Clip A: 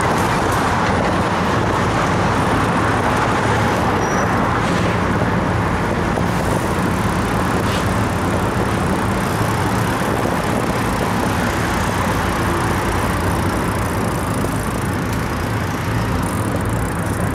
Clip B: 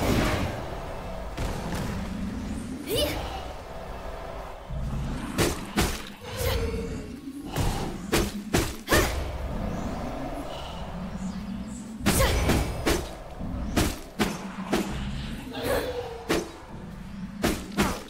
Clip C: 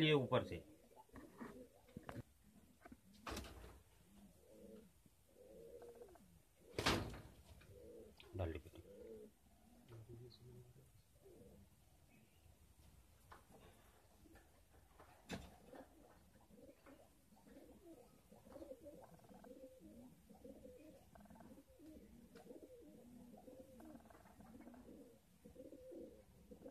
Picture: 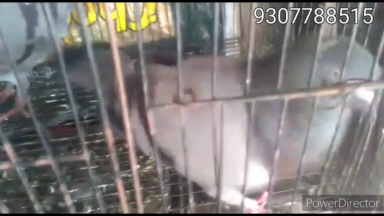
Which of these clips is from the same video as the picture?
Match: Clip C